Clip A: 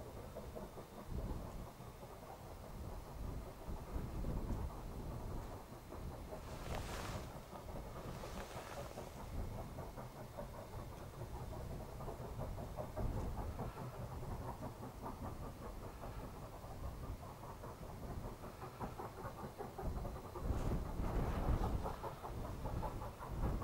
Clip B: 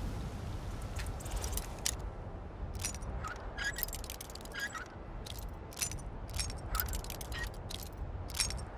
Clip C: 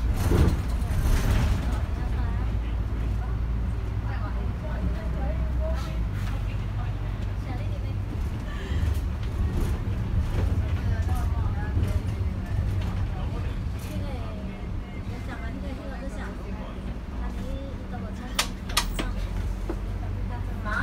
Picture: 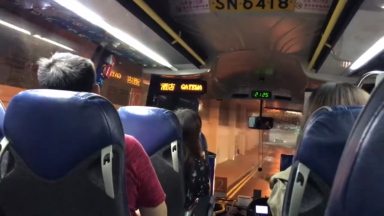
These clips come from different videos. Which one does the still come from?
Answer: C